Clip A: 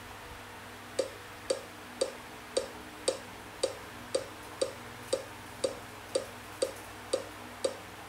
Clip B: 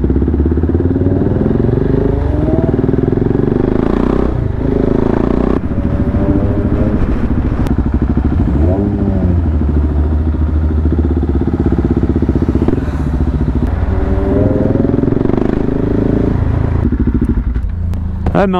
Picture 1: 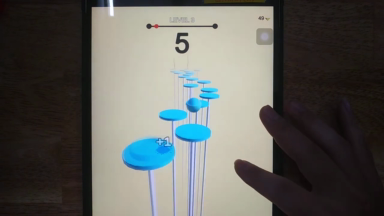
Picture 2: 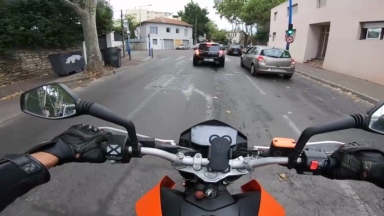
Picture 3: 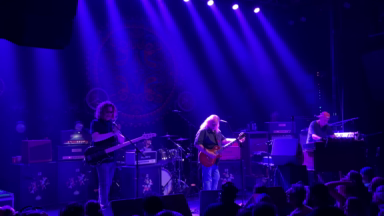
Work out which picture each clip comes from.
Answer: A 1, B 2